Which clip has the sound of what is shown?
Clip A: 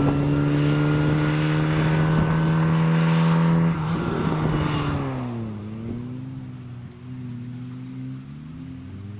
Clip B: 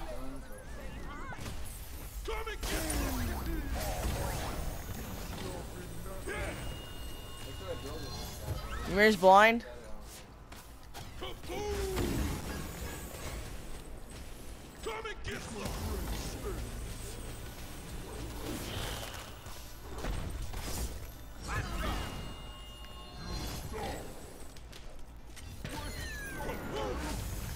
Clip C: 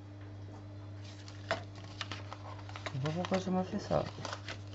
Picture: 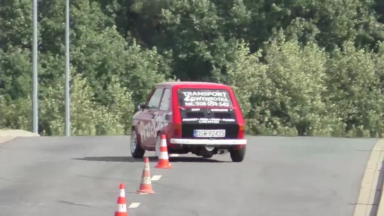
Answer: A